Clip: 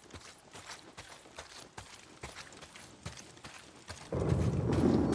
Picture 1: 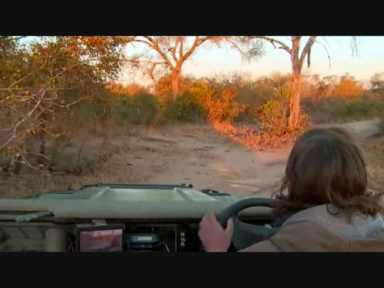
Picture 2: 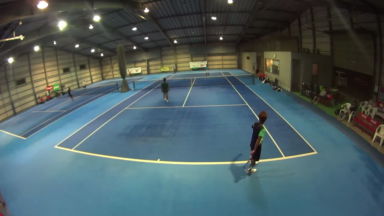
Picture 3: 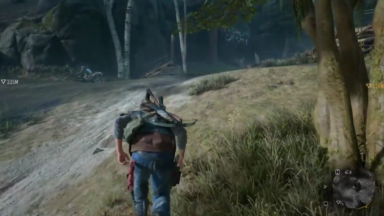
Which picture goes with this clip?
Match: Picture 3